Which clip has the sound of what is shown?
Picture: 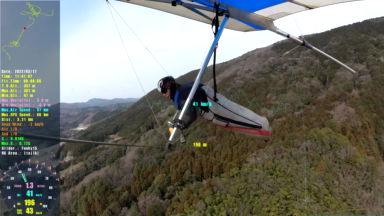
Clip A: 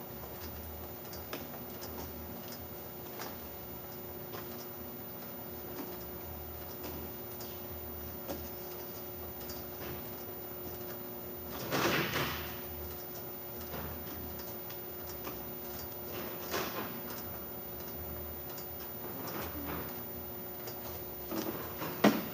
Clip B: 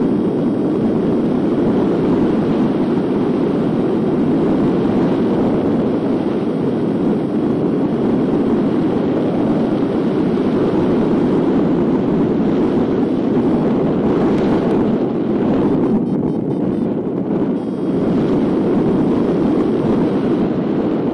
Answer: B